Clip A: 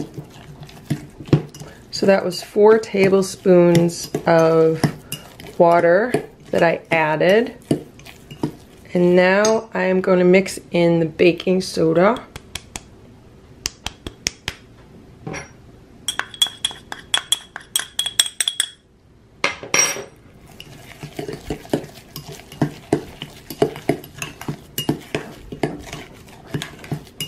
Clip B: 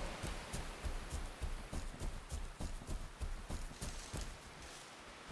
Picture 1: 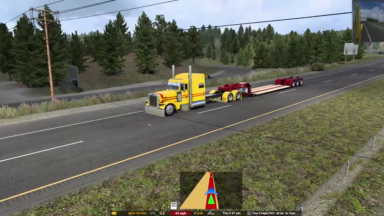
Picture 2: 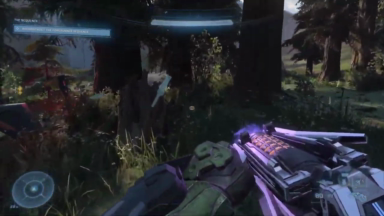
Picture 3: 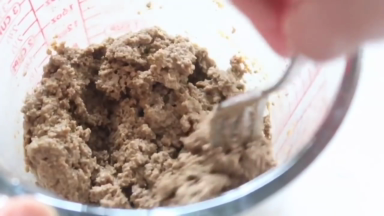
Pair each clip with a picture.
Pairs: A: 3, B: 2